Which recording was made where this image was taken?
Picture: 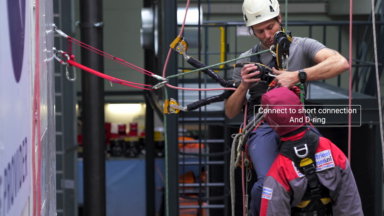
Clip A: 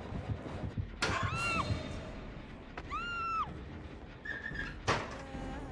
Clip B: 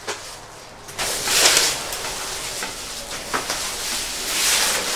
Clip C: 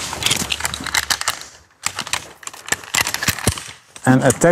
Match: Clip C